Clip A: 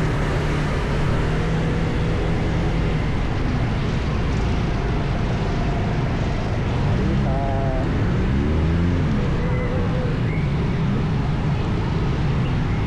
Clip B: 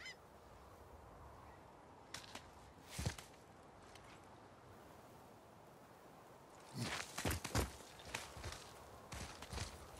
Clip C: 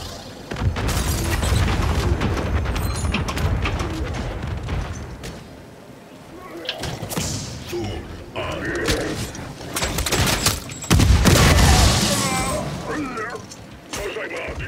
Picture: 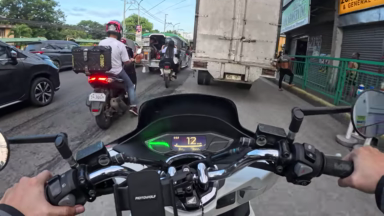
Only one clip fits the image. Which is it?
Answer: A